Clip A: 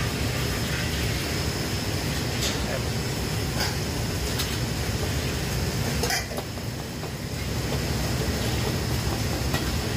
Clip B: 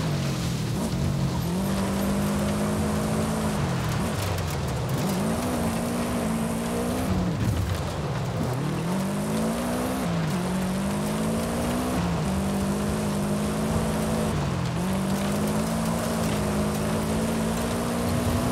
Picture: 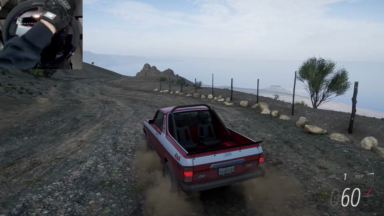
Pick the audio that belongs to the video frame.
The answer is B